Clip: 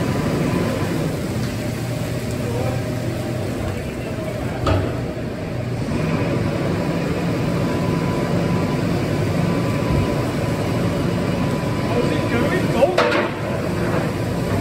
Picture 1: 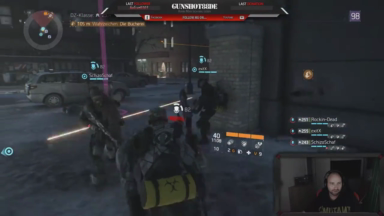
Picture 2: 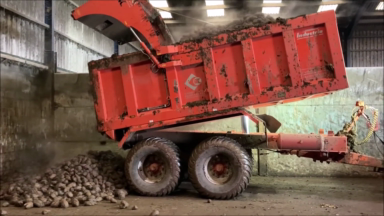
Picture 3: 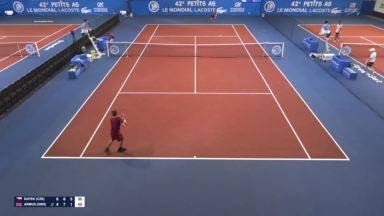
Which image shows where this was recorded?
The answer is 2